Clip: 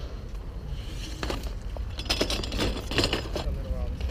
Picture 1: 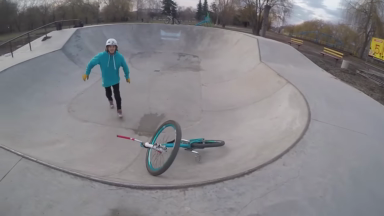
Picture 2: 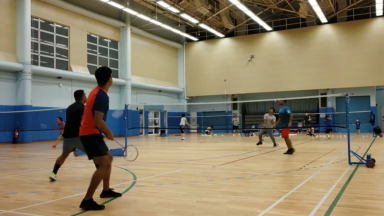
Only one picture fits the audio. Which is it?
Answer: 1